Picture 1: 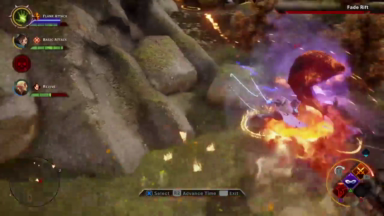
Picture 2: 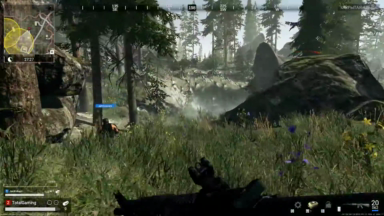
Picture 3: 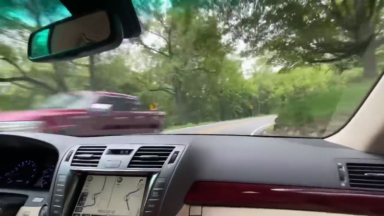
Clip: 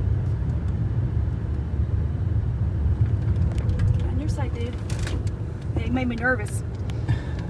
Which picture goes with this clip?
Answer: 3